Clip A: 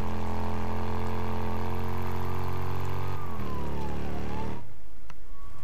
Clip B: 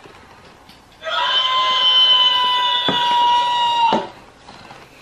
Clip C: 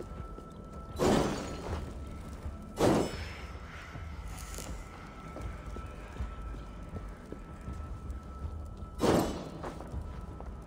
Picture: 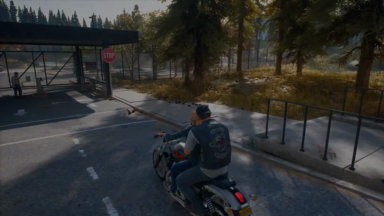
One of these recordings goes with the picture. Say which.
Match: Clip A